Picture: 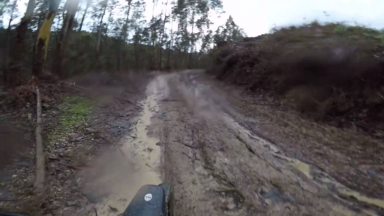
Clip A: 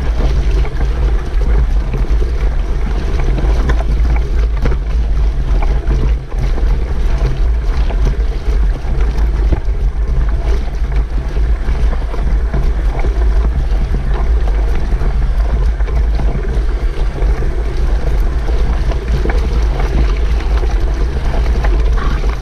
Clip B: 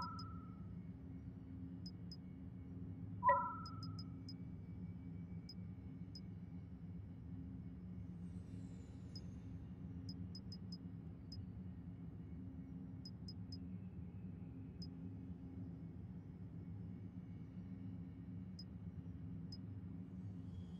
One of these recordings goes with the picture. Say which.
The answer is A